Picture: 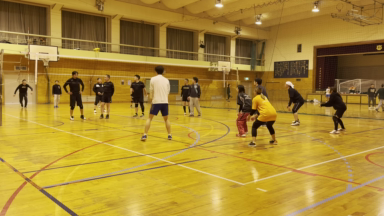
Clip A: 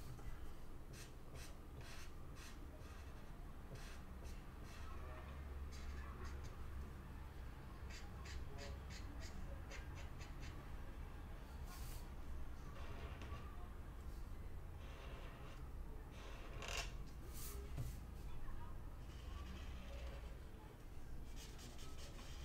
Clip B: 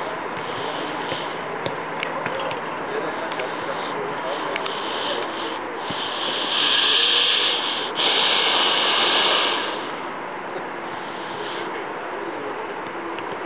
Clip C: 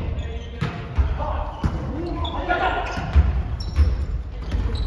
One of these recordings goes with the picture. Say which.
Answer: C